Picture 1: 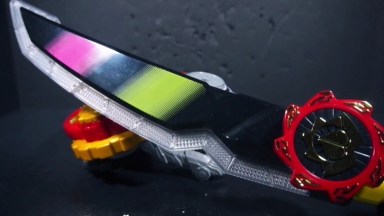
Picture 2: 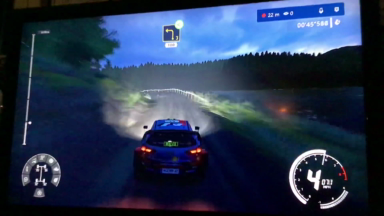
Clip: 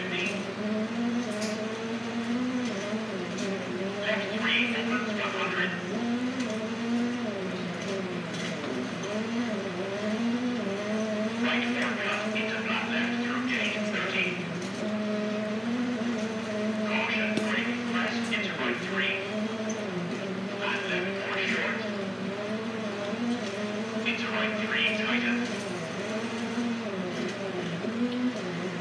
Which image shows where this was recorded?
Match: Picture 2